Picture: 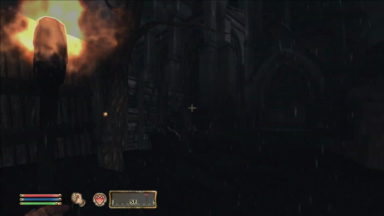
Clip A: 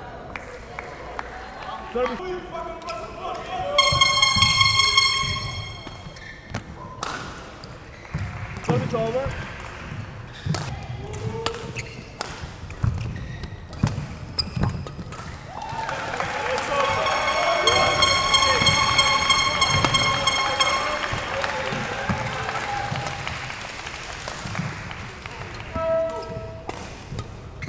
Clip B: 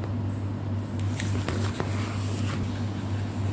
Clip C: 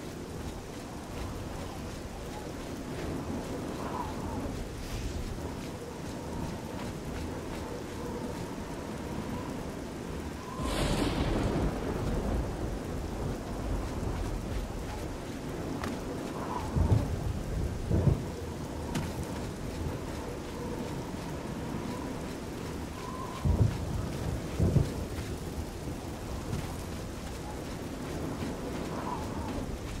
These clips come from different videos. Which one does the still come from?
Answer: C